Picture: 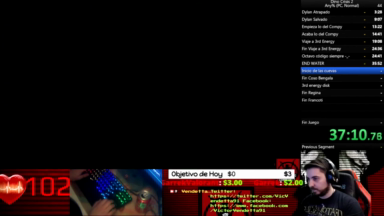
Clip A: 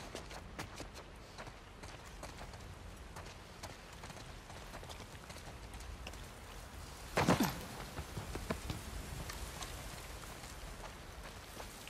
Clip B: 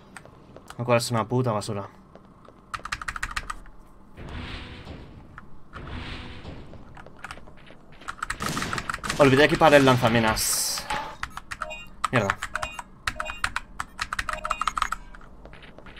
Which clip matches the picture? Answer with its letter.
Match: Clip B